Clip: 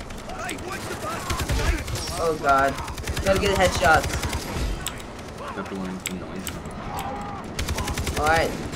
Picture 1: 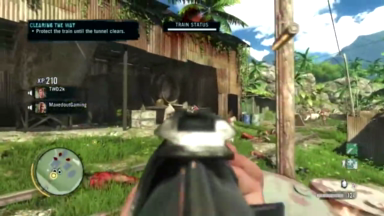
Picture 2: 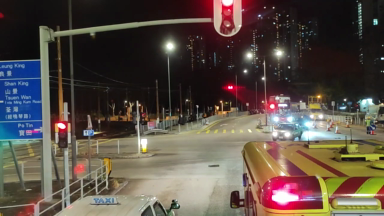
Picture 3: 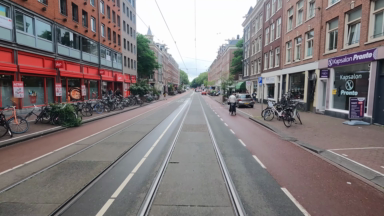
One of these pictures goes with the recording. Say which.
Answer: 1